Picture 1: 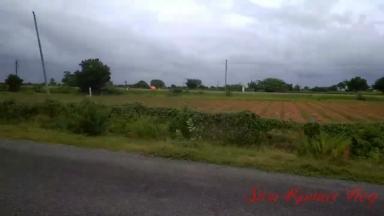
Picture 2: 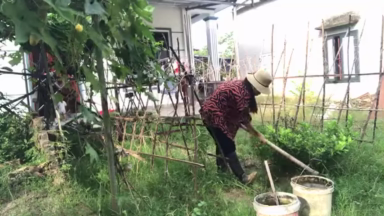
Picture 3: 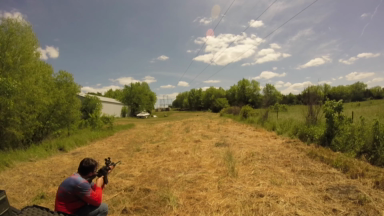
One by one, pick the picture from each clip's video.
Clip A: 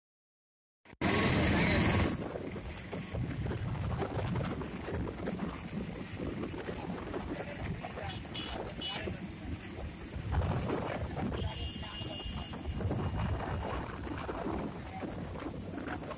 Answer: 1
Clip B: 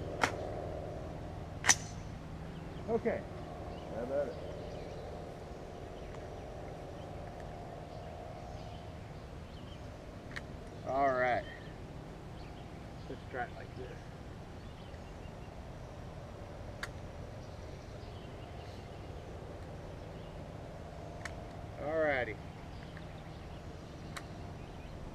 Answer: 3